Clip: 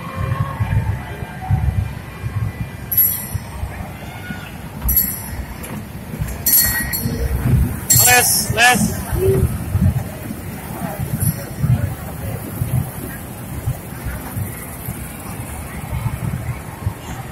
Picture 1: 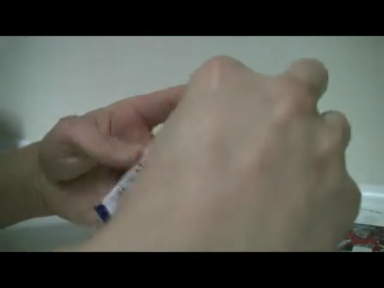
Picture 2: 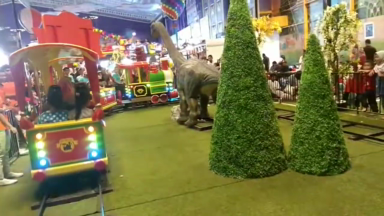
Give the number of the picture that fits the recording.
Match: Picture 2